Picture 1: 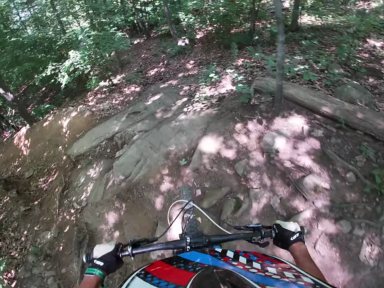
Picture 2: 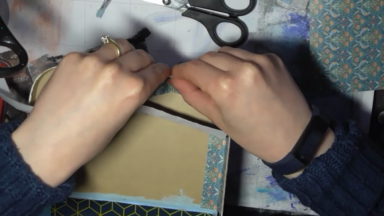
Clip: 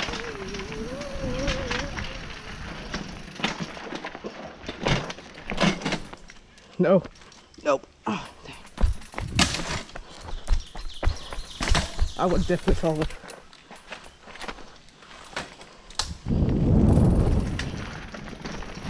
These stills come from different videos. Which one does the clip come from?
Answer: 1